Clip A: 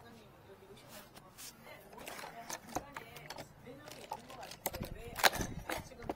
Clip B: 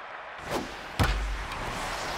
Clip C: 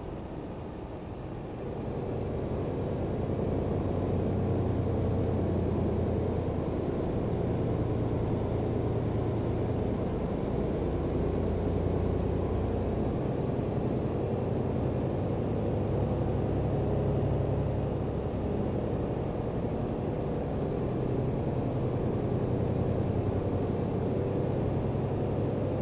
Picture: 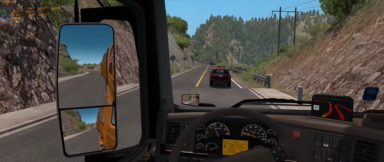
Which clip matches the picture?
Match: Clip C